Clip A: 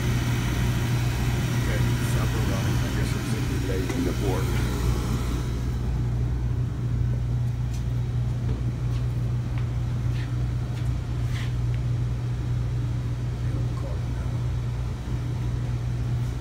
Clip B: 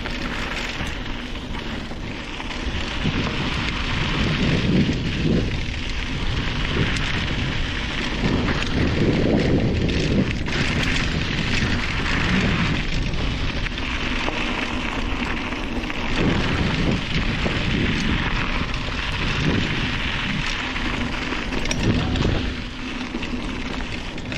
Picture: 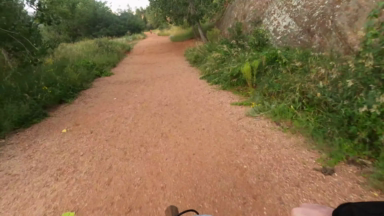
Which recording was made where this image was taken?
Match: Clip B